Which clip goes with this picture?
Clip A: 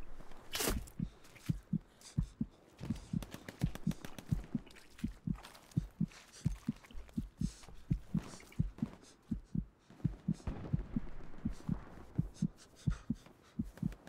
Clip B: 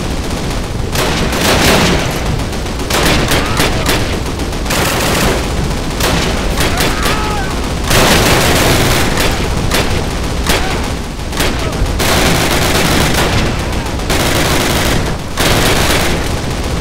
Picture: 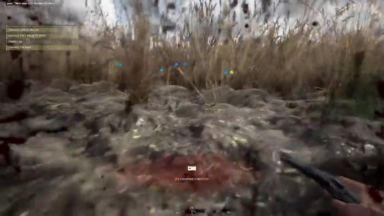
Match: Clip A